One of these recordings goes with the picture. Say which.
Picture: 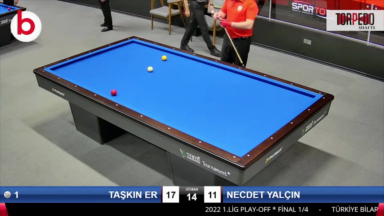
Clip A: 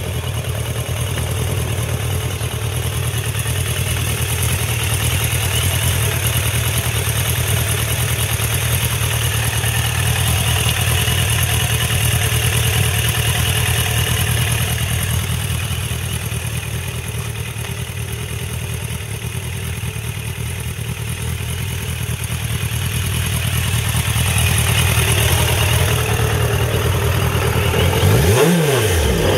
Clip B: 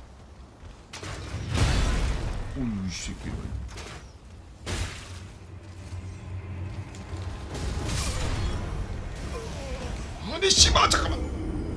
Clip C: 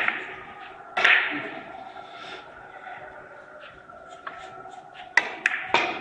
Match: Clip C